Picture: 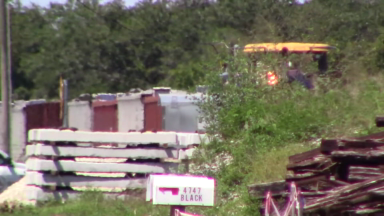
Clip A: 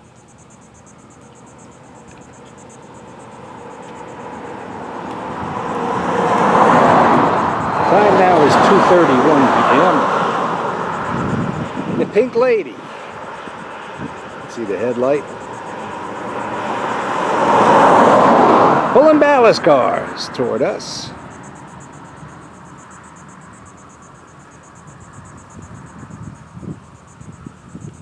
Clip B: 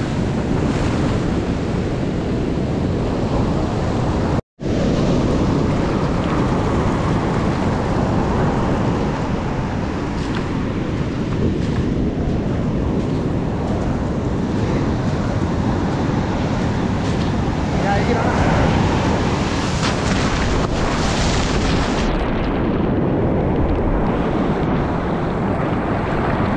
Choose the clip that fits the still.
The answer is A